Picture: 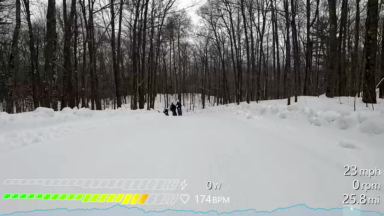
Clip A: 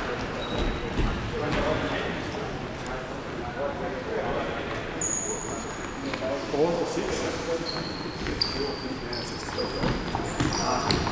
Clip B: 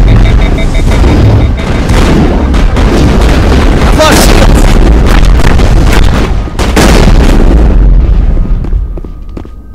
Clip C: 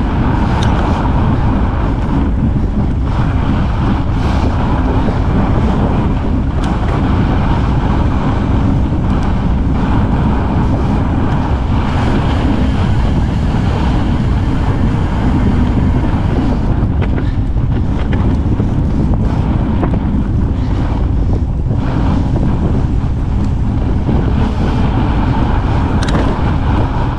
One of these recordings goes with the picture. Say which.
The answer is C